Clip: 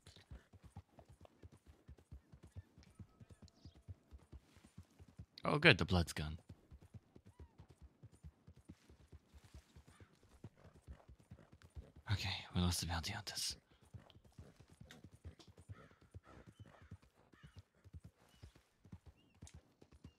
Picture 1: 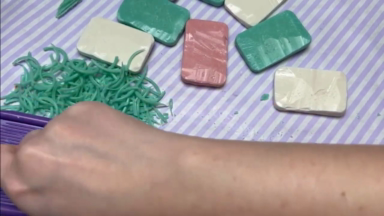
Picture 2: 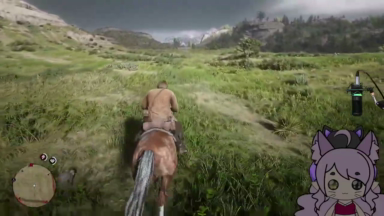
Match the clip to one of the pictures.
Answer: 2